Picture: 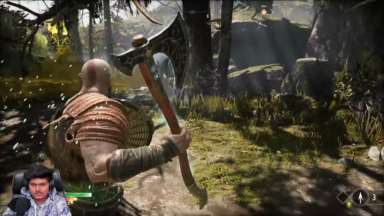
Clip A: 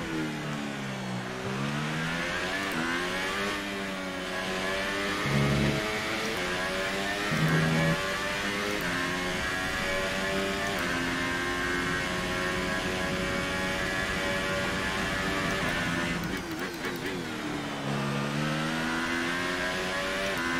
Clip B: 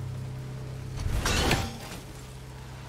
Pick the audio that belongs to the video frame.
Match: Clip B